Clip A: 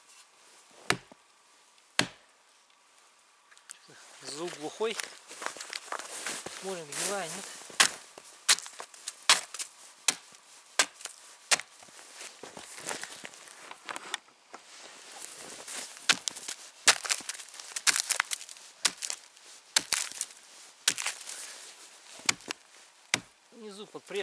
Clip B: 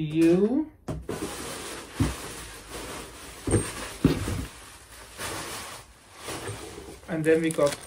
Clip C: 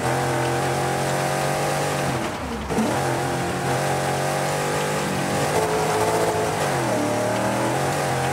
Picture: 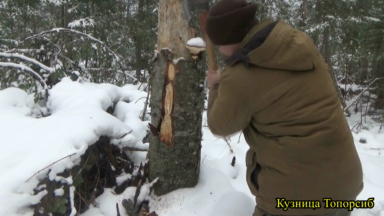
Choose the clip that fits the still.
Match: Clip A